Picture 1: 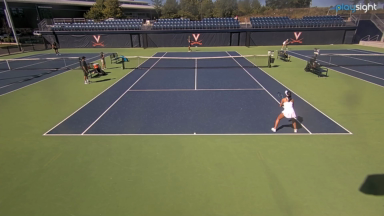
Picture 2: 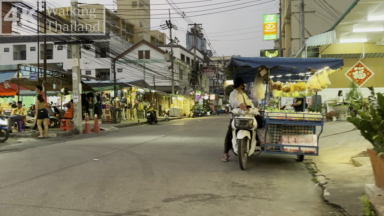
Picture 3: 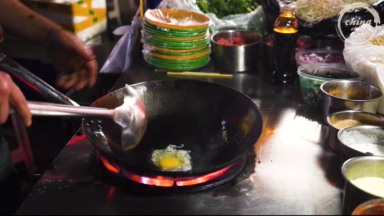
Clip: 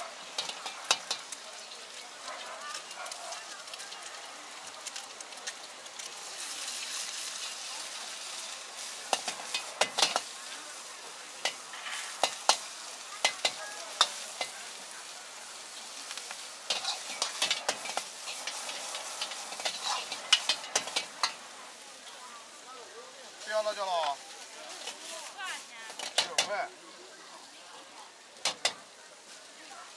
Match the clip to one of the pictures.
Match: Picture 3